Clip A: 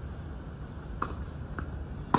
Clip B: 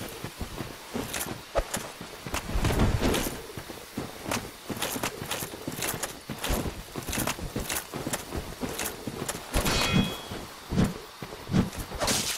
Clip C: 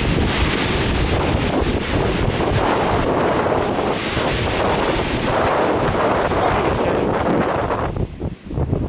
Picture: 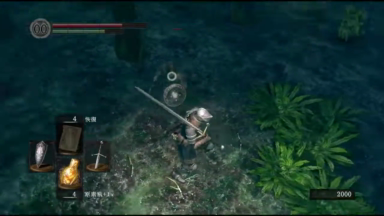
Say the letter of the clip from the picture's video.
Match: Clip B